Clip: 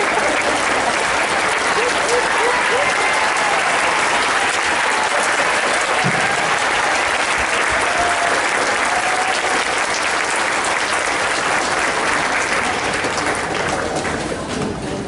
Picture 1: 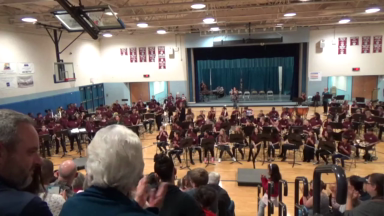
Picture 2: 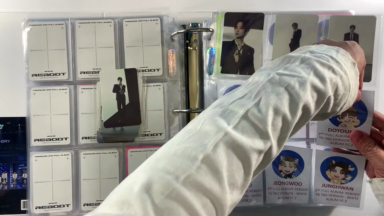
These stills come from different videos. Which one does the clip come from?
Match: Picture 1